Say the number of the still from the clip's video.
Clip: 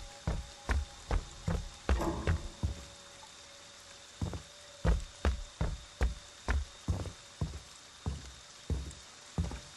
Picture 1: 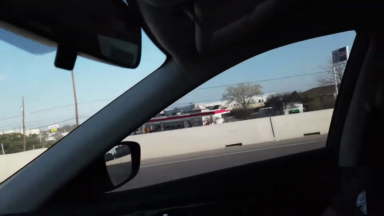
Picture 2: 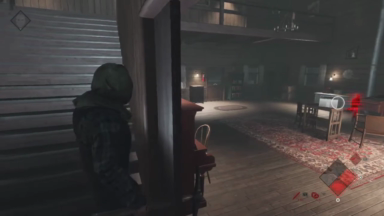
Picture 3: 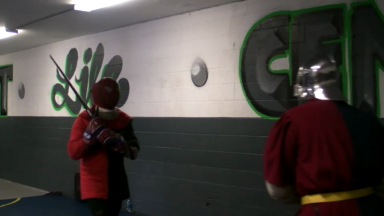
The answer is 2